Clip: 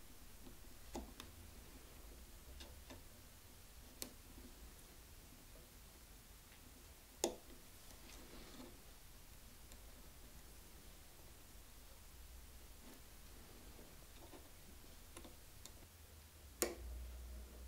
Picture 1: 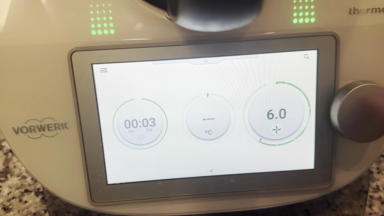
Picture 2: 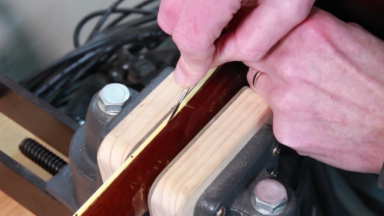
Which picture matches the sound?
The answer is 2